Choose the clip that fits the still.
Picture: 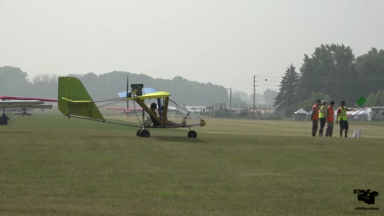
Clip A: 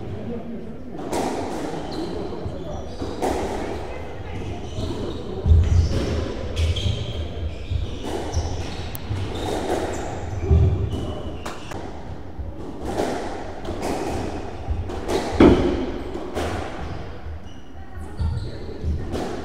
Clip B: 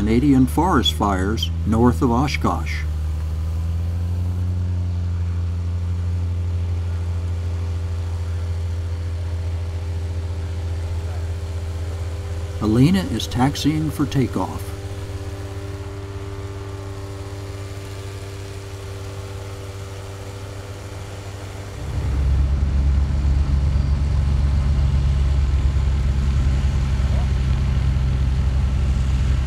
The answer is B